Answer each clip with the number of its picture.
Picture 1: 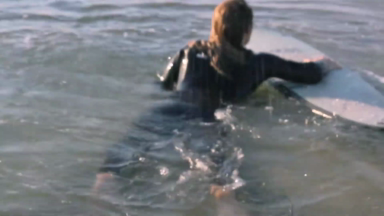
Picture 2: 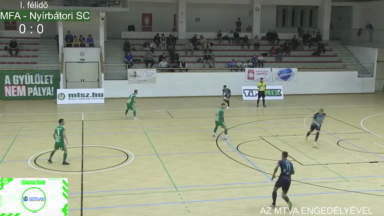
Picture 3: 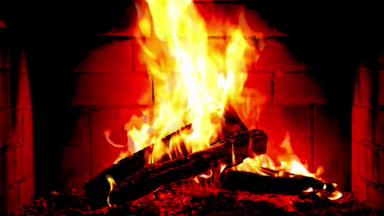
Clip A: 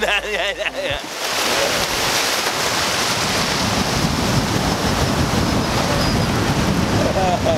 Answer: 1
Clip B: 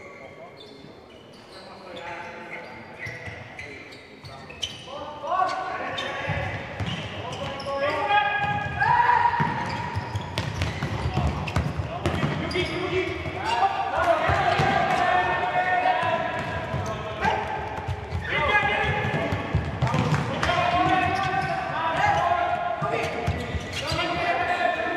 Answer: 2